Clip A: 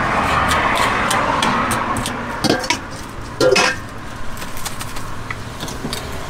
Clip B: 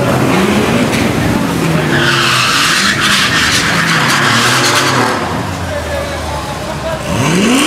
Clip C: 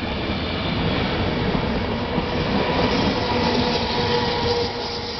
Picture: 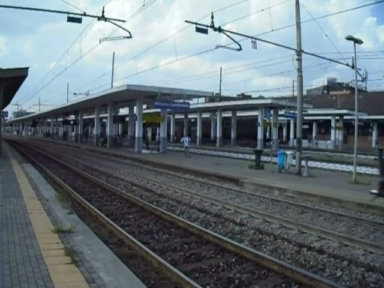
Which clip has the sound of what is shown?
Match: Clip C